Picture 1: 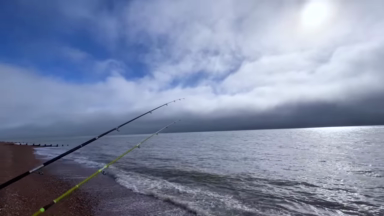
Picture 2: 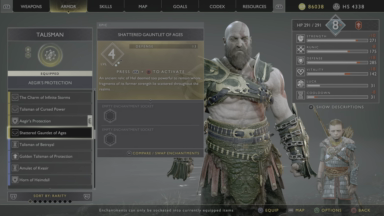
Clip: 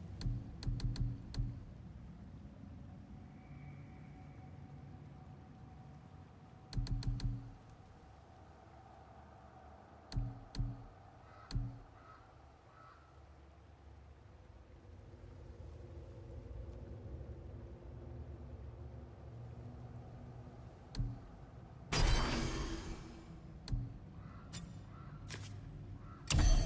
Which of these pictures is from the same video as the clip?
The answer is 2